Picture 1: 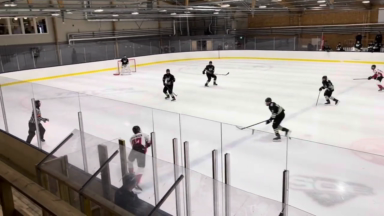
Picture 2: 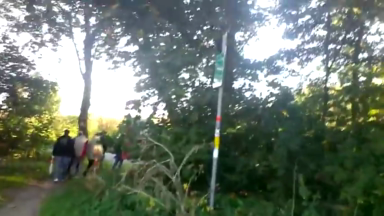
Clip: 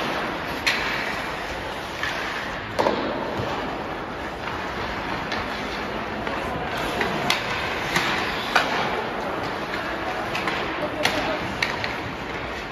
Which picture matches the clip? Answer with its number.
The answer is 1